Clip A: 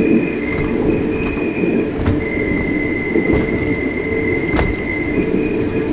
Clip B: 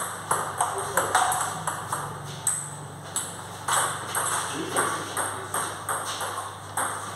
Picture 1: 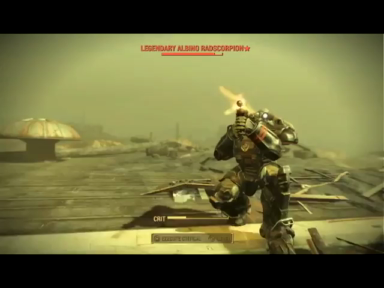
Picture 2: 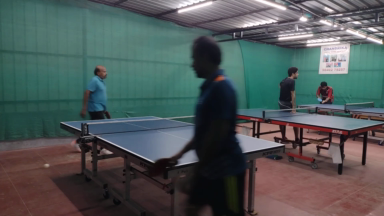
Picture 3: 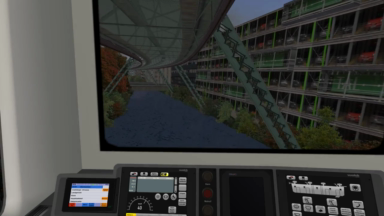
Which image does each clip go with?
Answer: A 3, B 2